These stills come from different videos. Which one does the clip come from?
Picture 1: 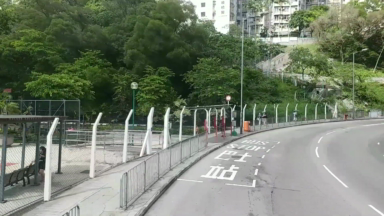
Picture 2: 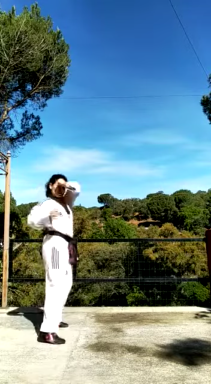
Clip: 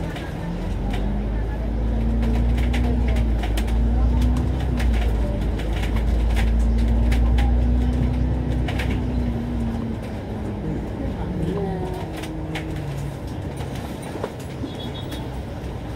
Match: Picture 1